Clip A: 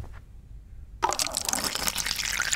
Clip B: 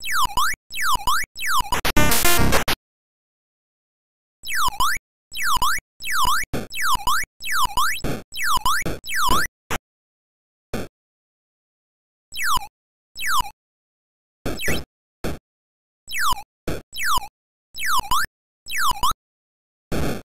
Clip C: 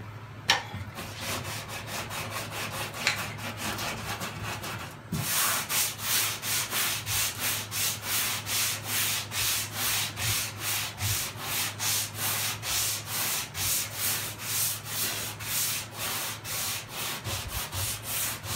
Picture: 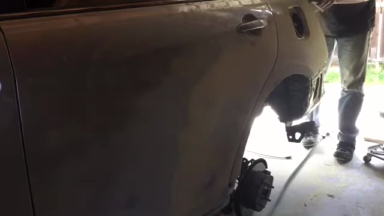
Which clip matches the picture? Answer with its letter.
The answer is C